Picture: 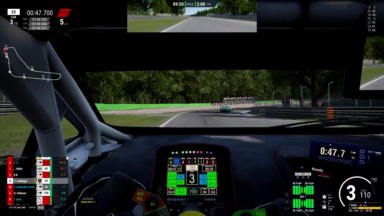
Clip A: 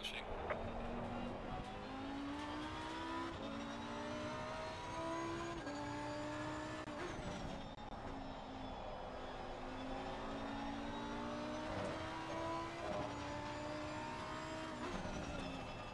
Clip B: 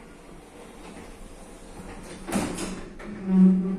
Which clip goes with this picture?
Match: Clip A